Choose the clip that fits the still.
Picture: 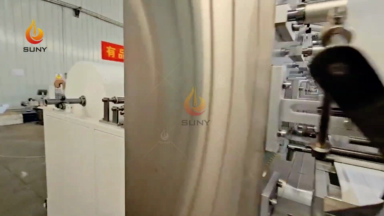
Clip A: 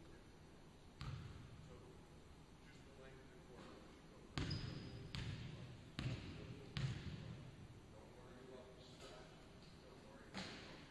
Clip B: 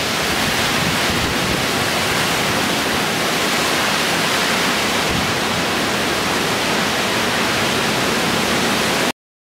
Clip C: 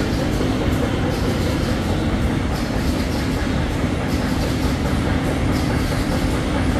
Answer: C